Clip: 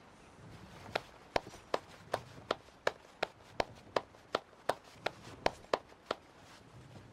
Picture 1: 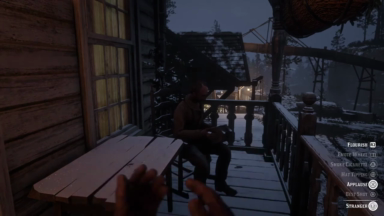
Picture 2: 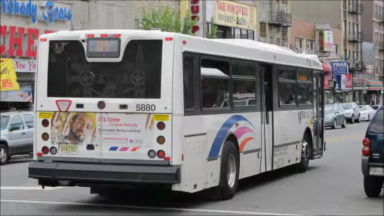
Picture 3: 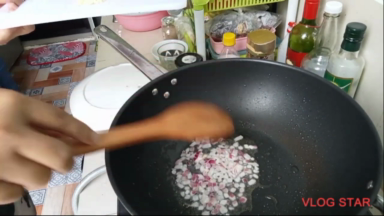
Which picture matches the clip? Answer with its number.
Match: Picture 1